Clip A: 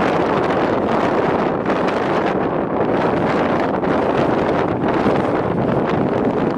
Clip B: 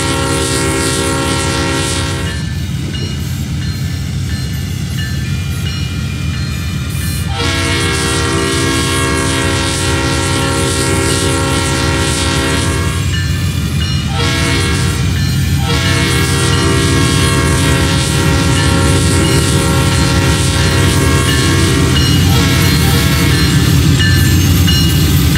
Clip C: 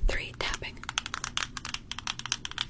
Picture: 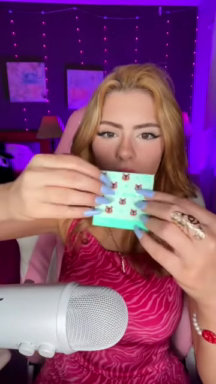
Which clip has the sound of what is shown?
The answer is C